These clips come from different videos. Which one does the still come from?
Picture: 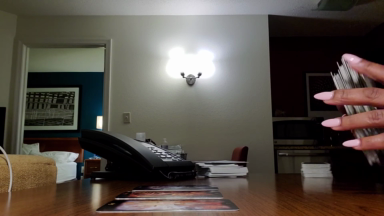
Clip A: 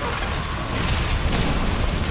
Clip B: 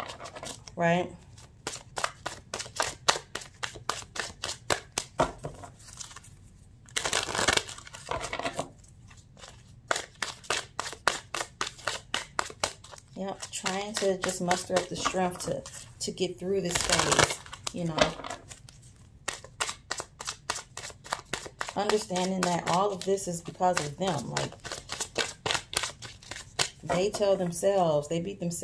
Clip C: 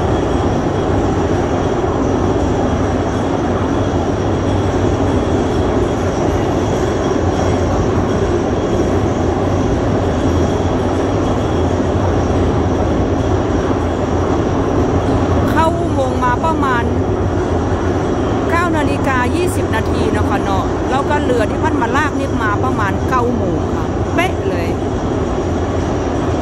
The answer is B